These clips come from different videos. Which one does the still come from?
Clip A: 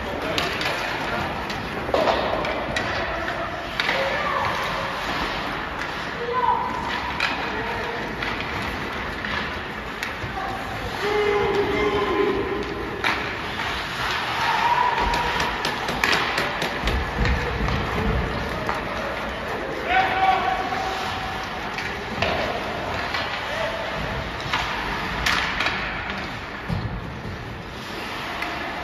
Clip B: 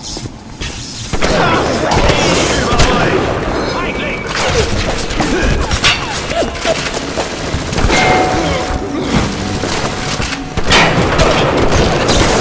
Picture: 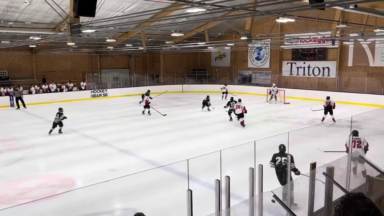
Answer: A